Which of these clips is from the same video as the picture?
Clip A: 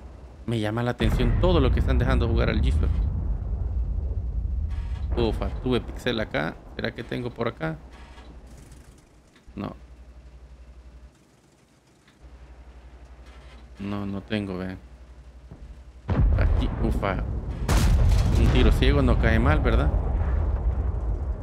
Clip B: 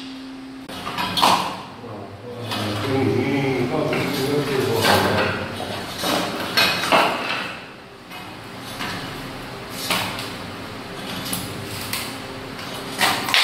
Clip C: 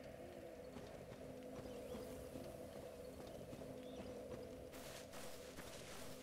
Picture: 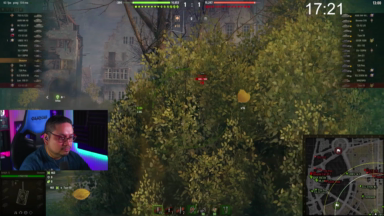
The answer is A